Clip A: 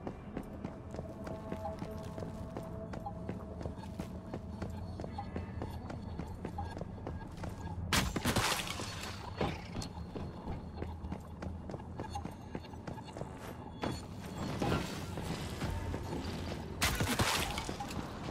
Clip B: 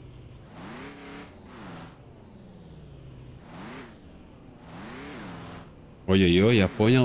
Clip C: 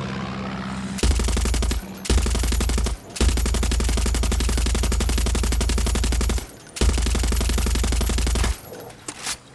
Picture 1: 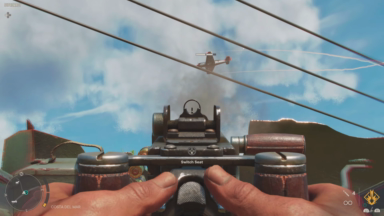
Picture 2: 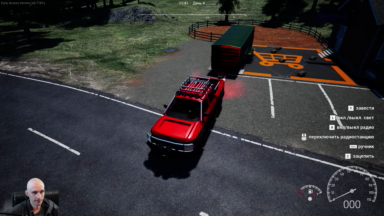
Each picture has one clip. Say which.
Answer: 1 C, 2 B